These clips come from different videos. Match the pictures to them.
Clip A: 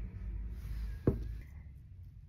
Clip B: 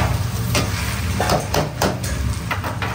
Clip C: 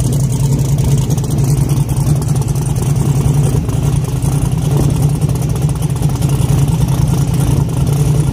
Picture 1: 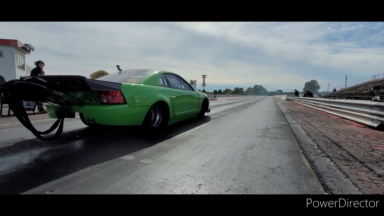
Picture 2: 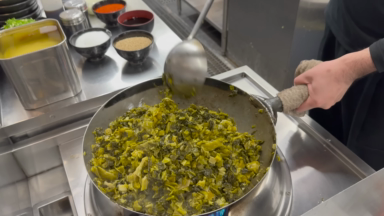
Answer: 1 C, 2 B